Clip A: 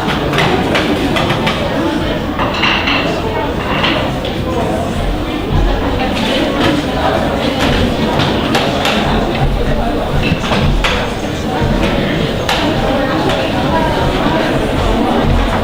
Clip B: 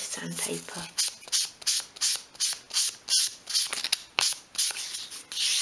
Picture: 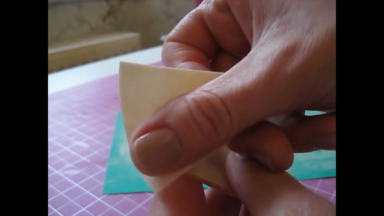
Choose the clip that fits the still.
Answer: B